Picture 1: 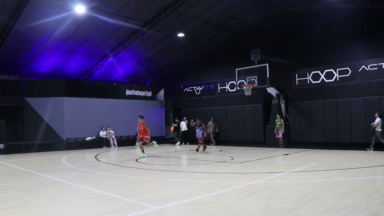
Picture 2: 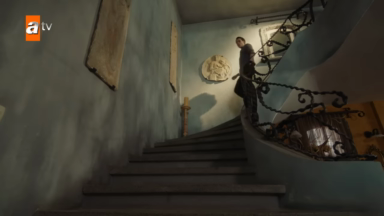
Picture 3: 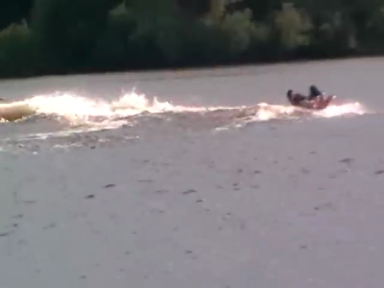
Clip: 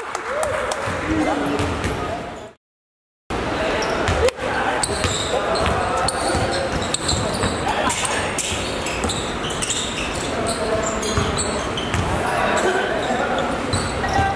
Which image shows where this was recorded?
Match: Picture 1